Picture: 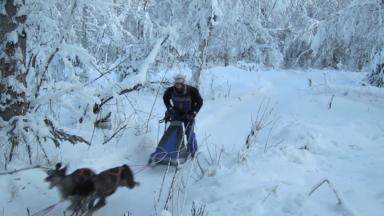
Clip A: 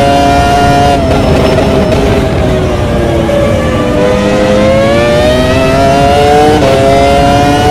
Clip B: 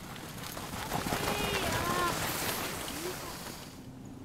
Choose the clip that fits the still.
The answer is B